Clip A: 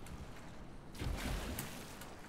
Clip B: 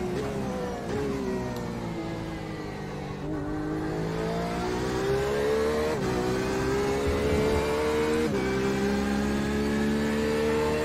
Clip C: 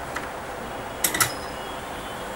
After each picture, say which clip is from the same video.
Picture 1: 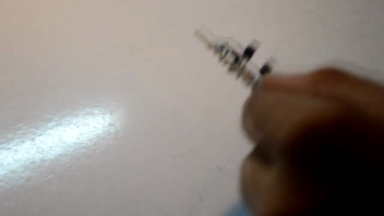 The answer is C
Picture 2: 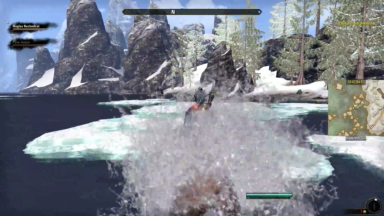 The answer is A